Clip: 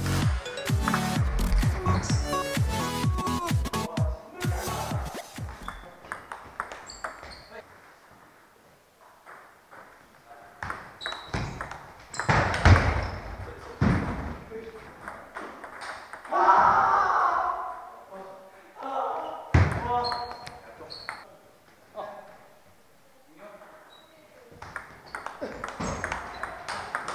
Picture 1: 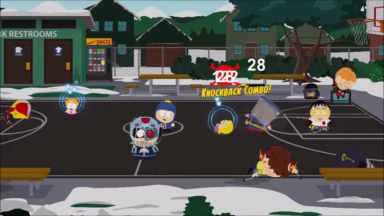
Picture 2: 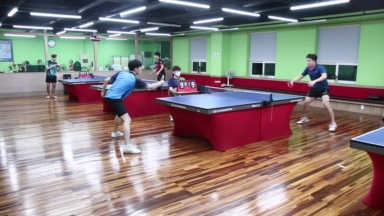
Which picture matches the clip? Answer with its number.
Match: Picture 2